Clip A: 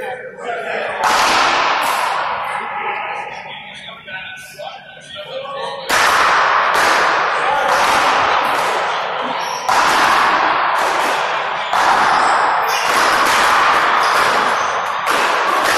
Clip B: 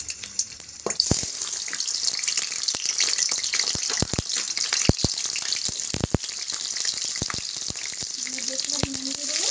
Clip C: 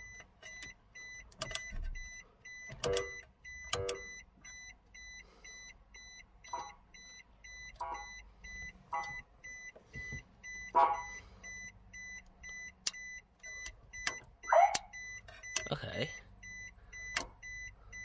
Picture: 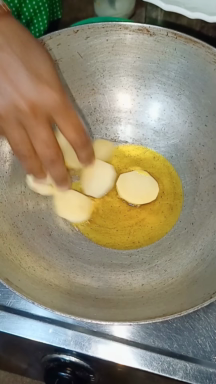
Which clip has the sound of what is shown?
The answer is B